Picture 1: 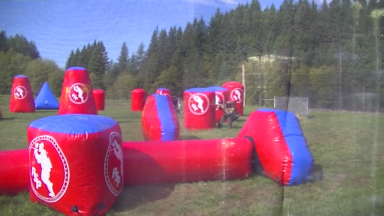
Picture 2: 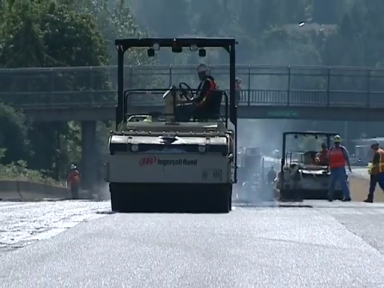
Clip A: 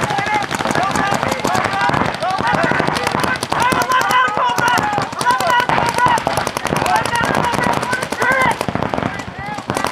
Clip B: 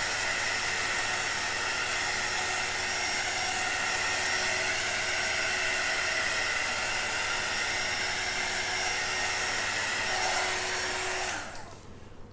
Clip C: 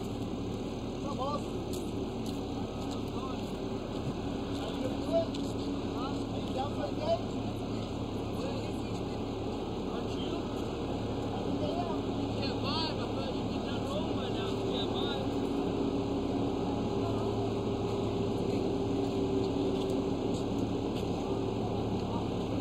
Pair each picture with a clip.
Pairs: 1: A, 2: C